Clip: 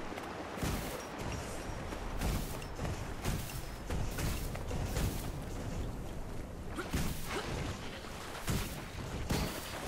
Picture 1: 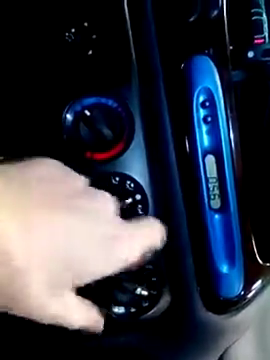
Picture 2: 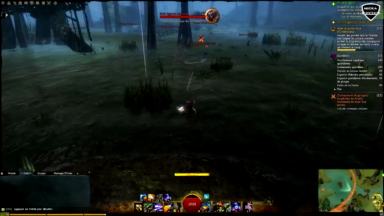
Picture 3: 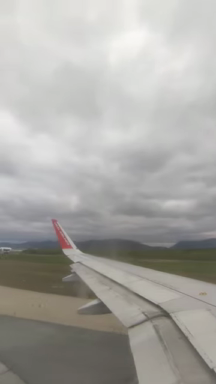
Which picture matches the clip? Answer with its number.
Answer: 2